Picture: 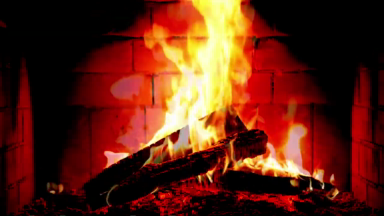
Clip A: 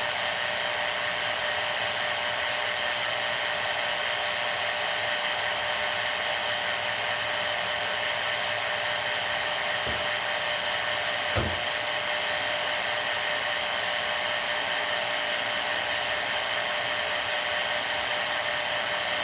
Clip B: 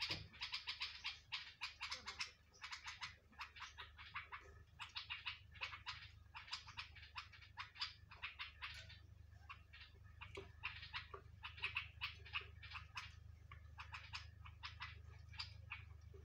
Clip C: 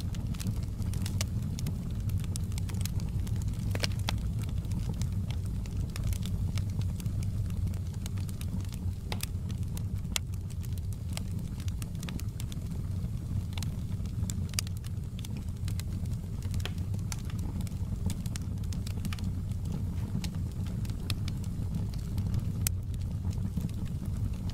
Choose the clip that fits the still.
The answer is C